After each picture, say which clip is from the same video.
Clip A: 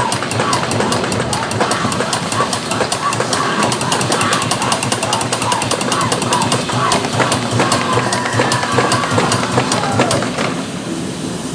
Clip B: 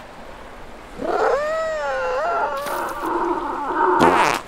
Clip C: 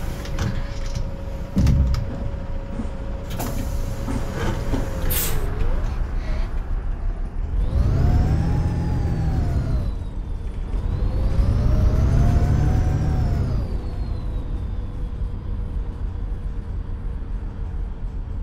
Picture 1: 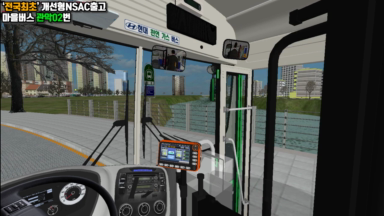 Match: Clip C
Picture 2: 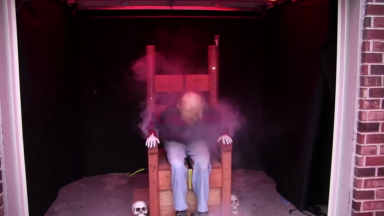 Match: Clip A